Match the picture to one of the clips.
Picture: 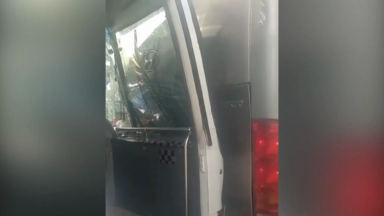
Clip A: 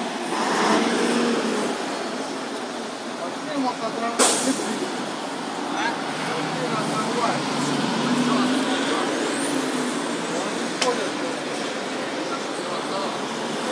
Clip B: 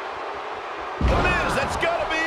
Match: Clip A